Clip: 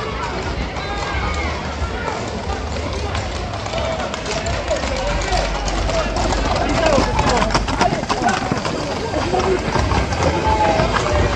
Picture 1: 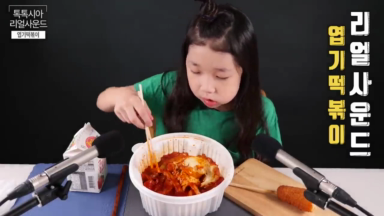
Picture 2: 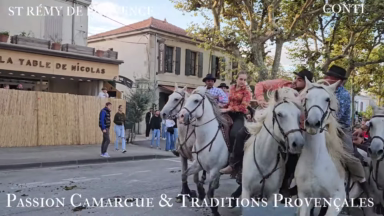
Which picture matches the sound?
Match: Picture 2